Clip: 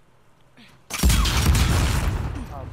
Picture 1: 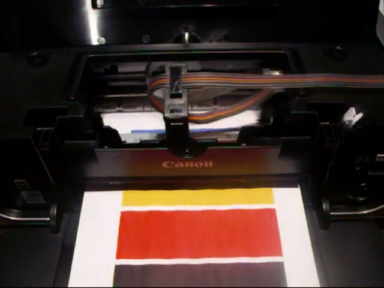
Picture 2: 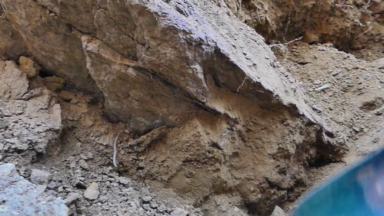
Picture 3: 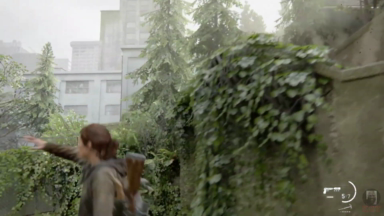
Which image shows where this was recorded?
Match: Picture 3